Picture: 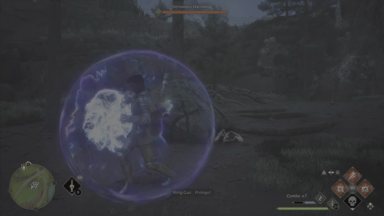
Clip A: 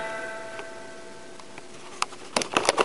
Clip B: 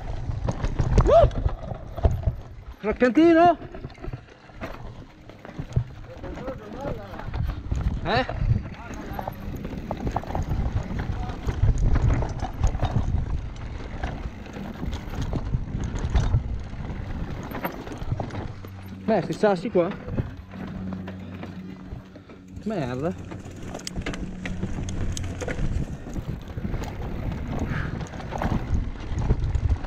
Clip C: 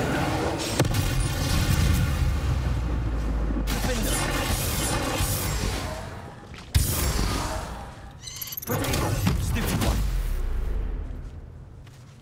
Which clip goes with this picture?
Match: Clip C